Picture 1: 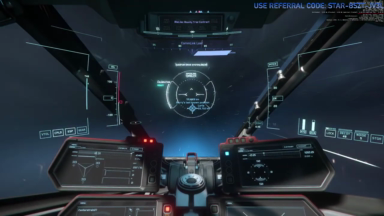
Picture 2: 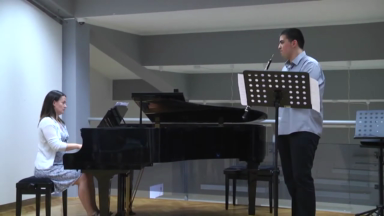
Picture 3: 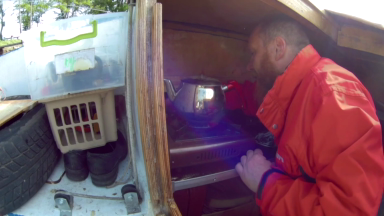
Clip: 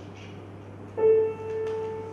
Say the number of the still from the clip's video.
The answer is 2